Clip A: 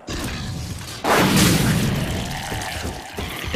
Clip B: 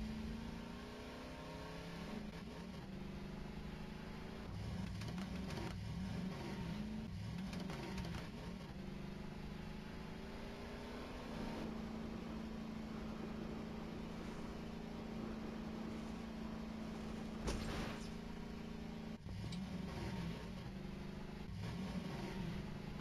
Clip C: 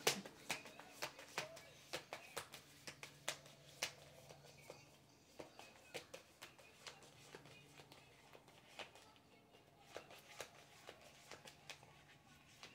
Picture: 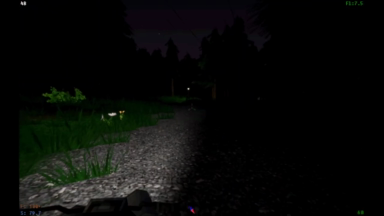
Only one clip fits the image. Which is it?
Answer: B